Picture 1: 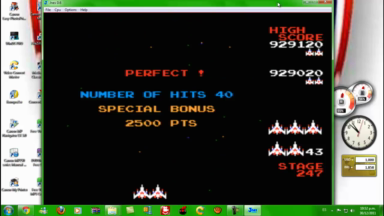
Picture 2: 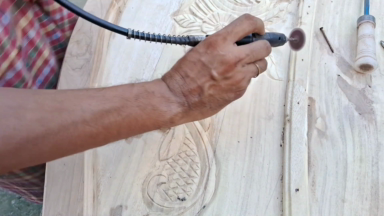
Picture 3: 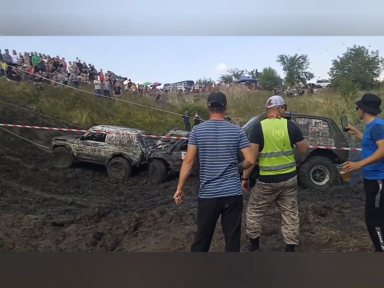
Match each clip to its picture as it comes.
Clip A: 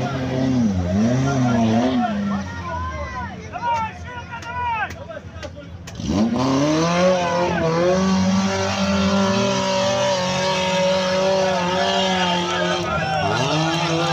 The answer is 3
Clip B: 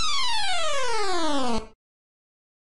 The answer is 1